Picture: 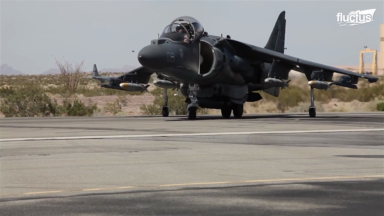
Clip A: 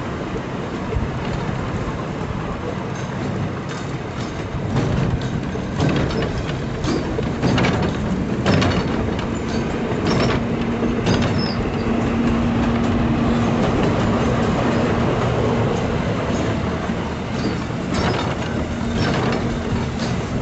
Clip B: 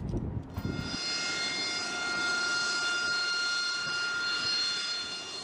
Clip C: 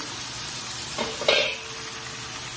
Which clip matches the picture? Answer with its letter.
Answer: B